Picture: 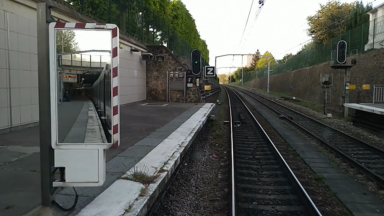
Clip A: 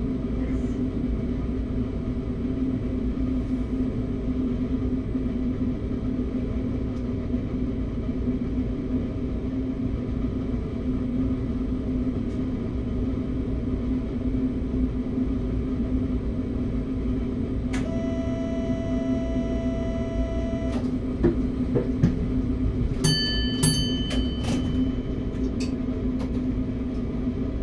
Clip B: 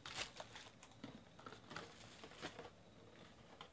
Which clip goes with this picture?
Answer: A